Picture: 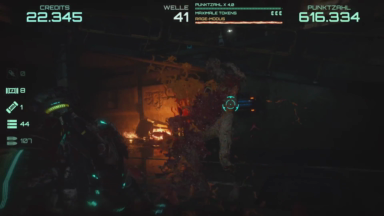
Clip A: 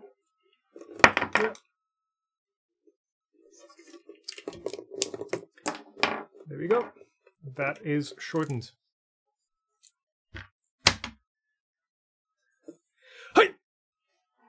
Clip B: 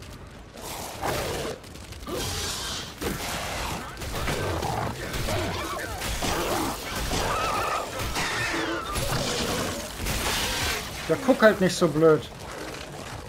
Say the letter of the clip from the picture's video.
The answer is B